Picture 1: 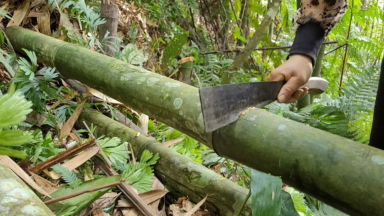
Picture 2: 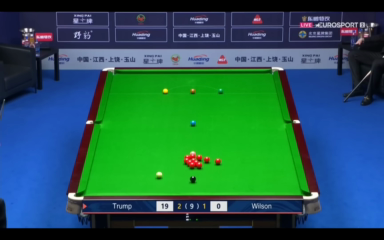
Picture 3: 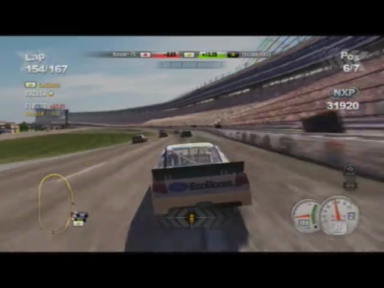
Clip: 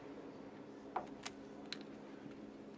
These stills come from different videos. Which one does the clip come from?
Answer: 2